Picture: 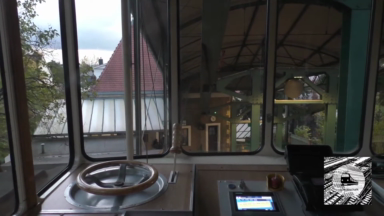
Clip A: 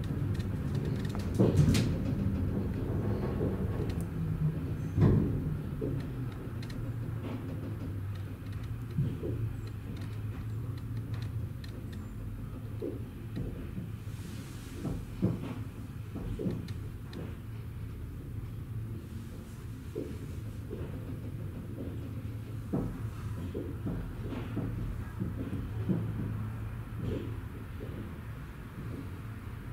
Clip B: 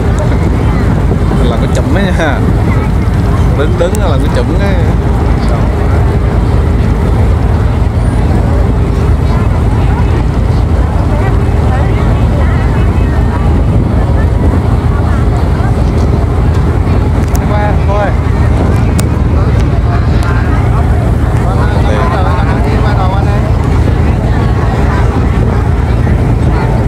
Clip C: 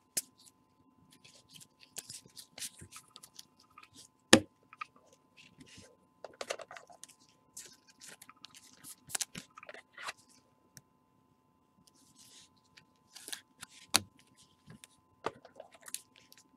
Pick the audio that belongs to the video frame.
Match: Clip A